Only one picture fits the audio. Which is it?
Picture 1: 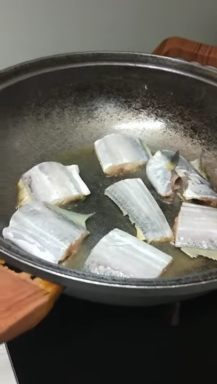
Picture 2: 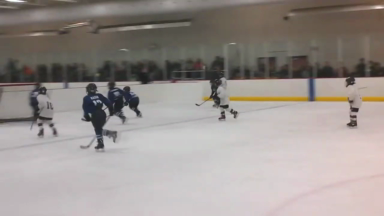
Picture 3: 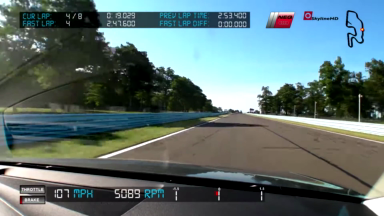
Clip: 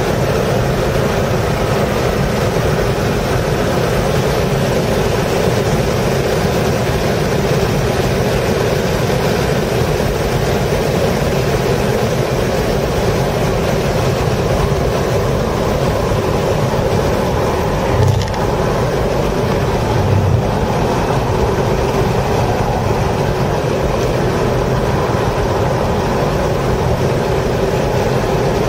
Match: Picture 3